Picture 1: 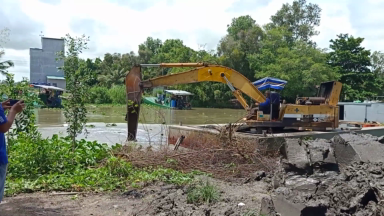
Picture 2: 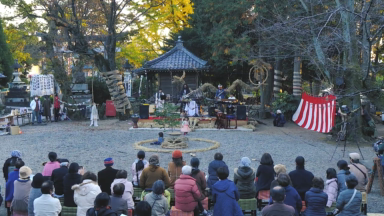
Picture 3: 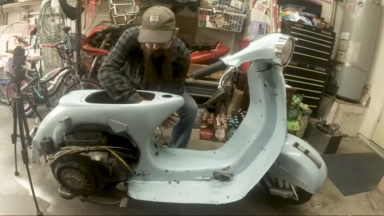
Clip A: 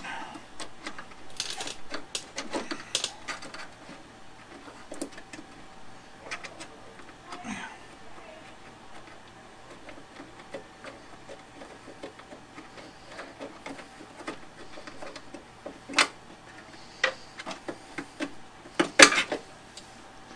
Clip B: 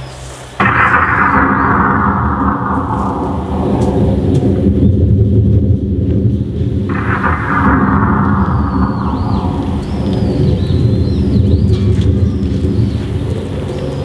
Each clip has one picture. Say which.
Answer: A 3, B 2